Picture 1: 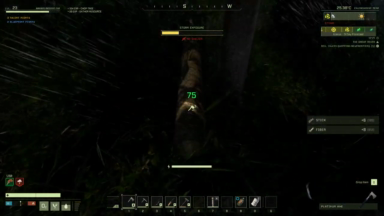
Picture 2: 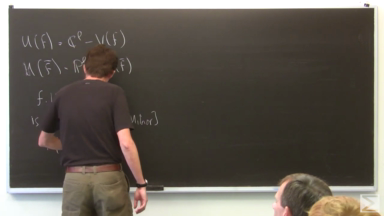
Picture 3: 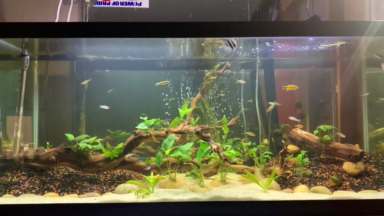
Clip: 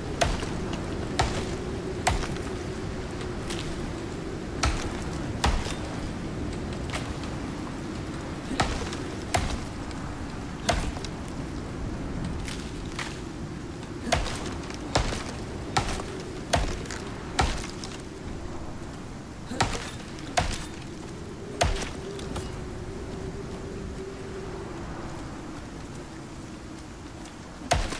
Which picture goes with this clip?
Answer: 1